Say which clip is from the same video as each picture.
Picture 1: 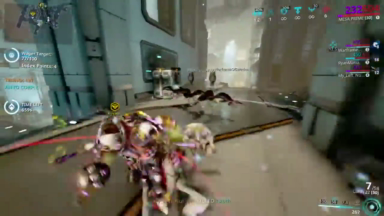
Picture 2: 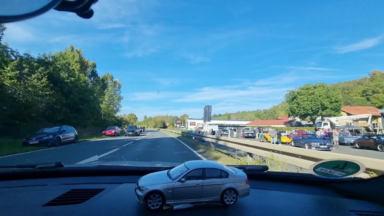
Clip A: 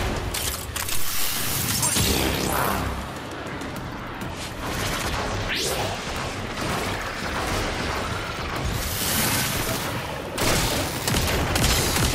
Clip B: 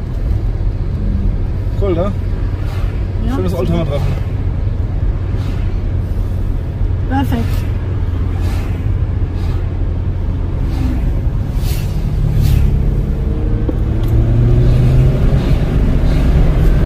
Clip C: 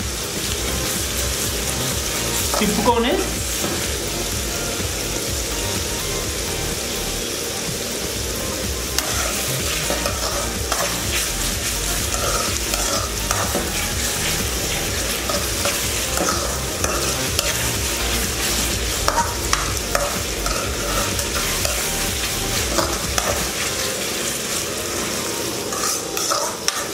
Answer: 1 A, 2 B